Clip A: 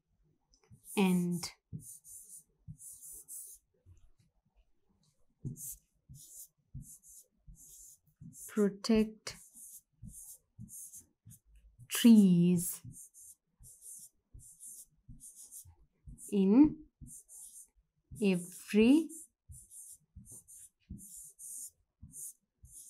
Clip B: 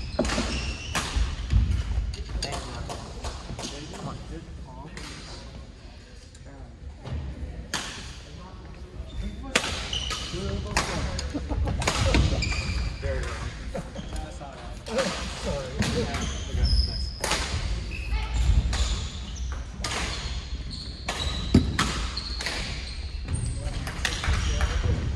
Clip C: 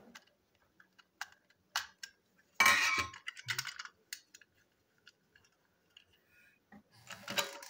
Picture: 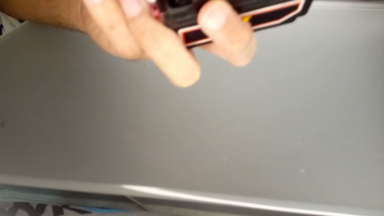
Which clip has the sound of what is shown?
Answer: C